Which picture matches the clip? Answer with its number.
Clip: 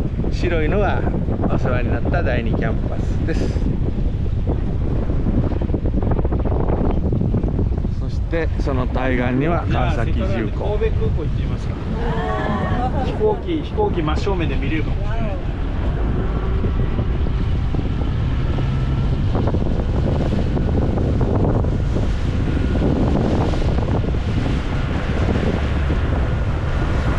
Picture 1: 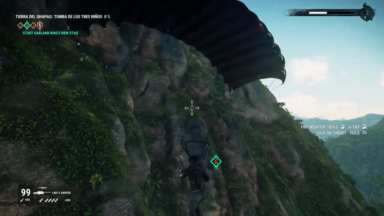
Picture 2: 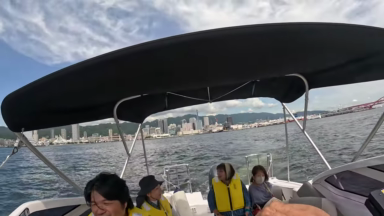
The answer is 2